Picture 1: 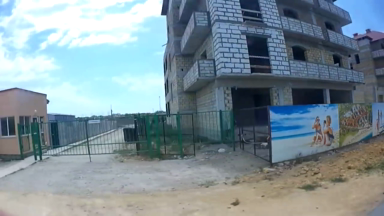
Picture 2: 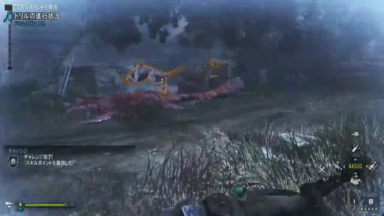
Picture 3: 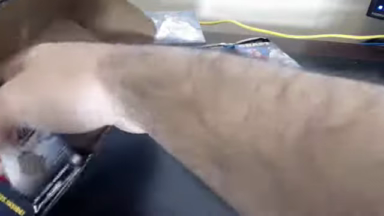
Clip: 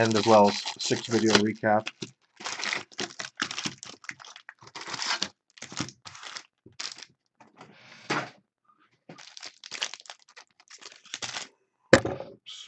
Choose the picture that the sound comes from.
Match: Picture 3